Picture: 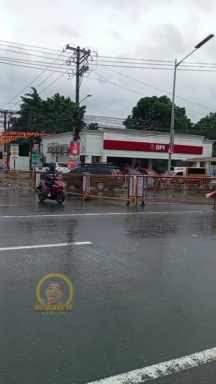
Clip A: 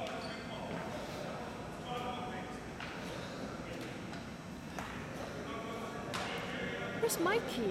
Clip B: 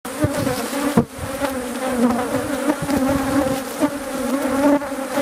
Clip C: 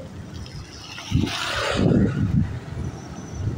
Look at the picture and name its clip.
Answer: C